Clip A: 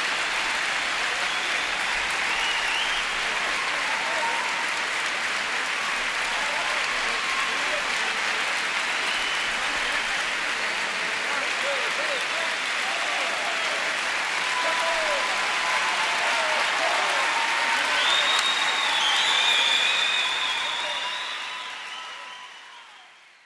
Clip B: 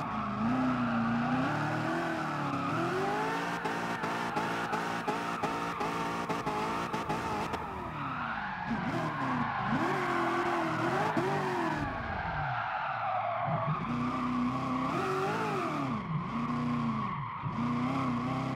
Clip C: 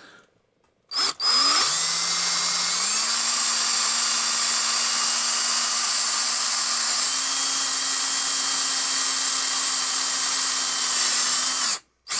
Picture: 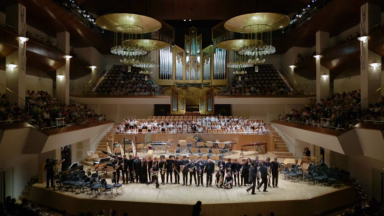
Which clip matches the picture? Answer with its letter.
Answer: A